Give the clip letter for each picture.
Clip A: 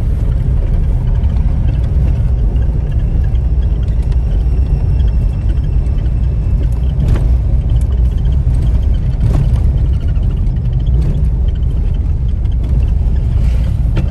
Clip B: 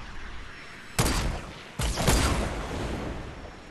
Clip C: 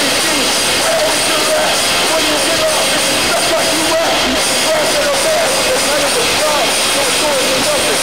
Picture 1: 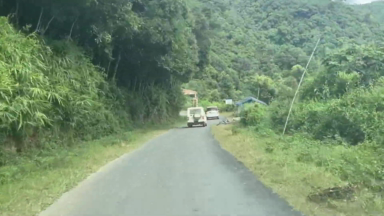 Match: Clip A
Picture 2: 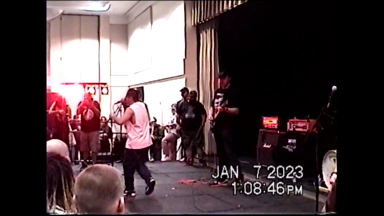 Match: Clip C